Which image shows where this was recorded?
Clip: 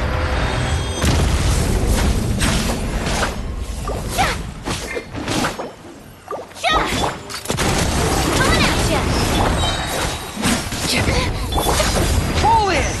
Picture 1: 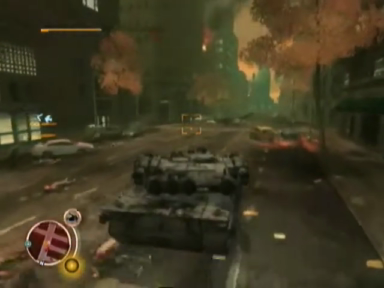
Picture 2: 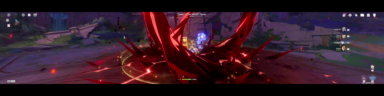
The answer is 2